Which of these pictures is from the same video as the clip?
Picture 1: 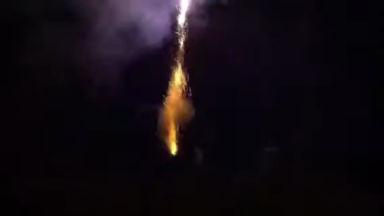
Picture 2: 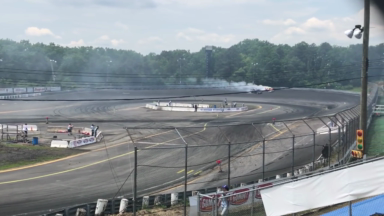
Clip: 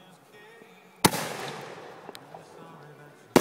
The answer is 1